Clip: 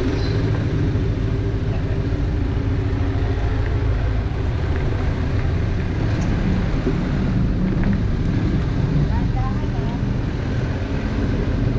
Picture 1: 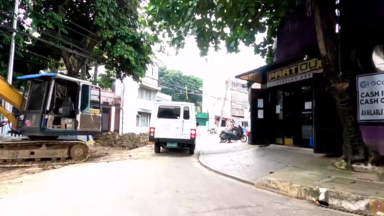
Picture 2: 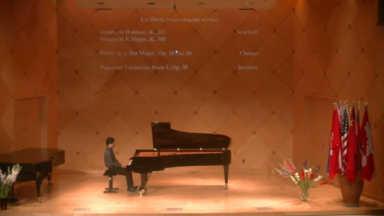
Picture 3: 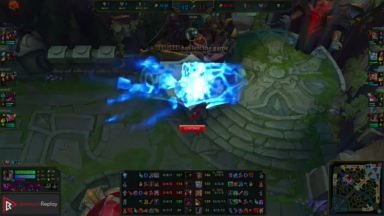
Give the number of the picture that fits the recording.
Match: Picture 1